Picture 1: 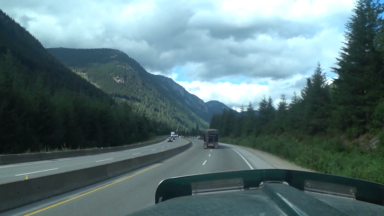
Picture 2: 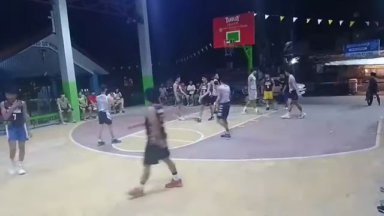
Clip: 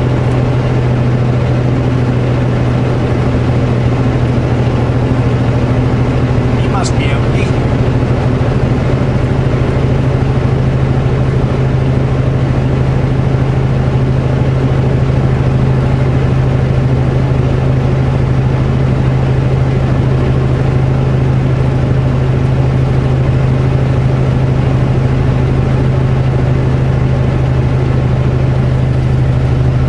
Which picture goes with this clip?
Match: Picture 1